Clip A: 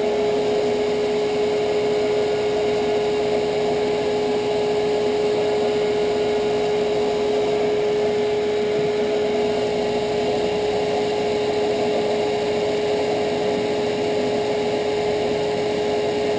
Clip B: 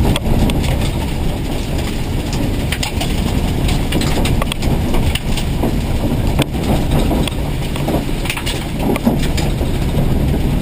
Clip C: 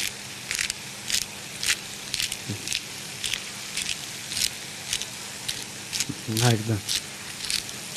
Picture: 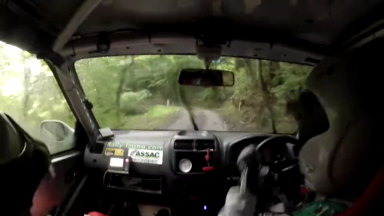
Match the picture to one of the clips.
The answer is B